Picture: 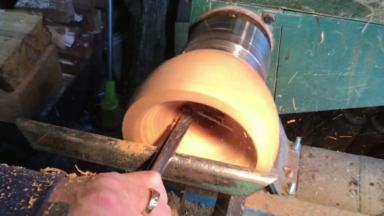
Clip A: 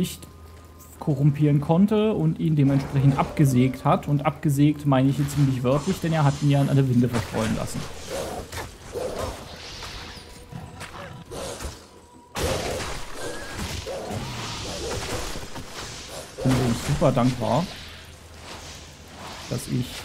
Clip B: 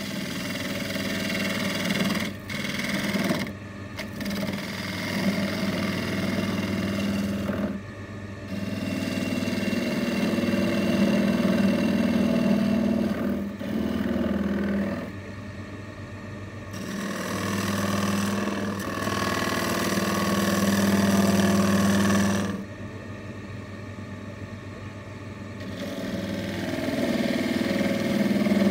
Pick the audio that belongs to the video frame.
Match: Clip B